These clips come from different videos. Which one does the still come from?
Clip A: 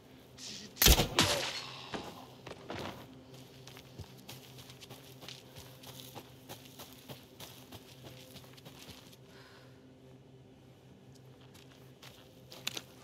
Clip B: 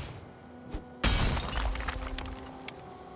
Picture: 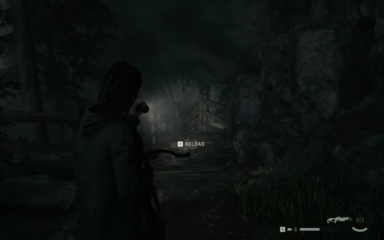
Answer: A